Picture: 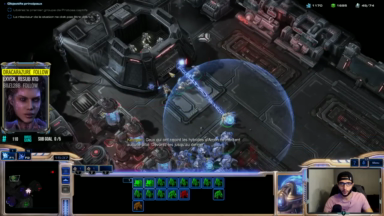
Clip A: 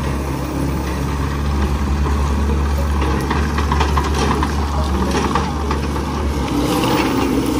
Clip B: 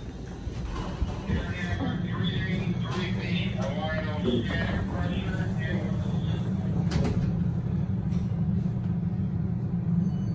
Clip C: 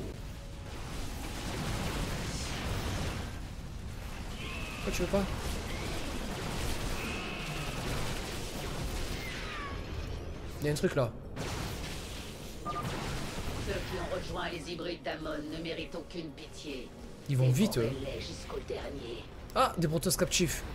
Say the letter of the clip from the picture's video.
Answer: C